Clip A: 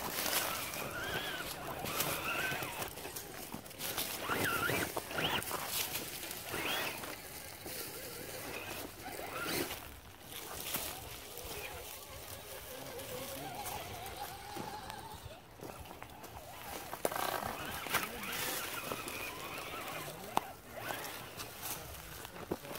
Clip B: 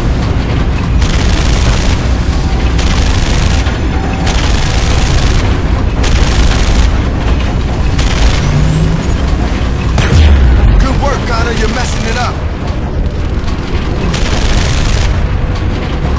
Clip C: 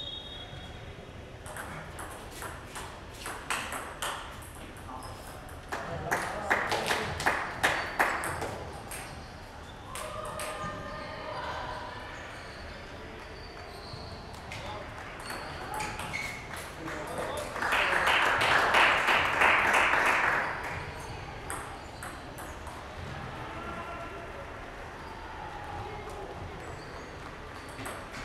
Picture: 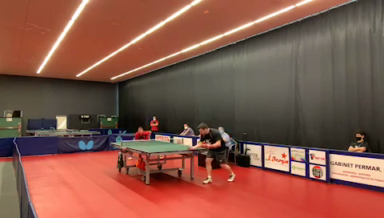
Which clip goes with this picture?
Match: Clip C